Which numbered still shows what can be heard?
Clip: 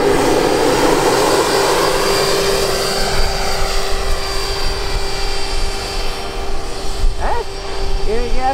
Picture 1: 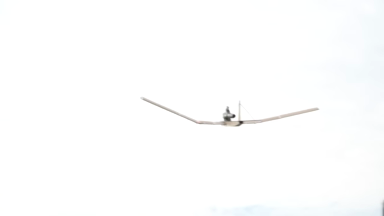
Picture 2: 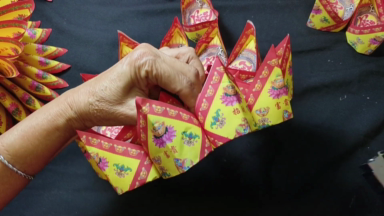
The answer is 1